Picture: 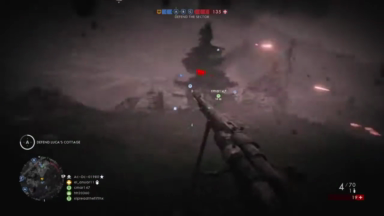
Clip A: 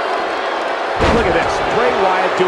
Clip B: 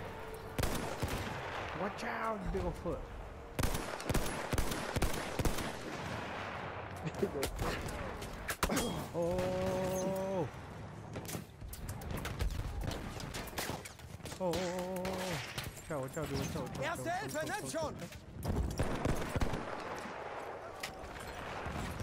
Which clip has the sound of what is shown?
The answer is B